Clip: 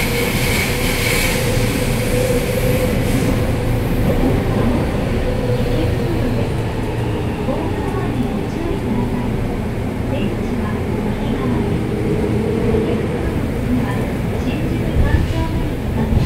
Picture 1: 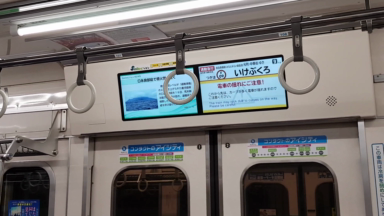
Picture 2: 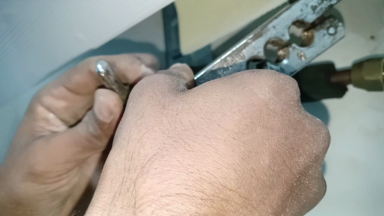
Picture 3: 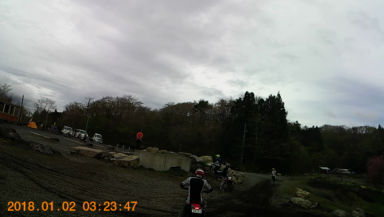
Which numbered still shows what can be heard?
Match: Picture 1